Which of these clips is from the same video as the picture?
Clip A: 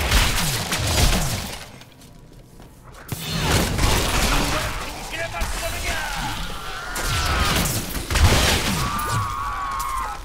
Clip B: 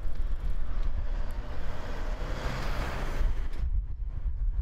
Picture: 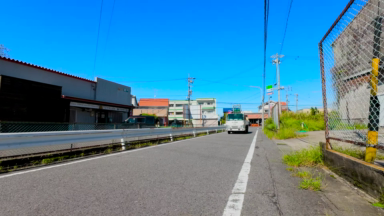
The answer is B